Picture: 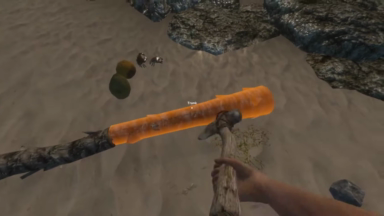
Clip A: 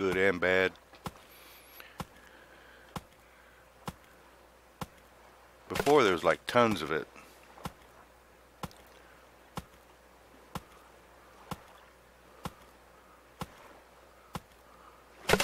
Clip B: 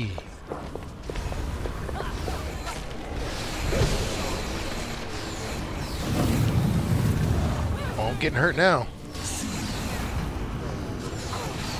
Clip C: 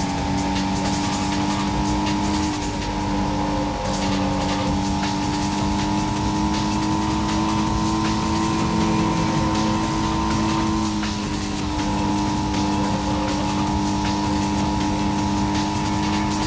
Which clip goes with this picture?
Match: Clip A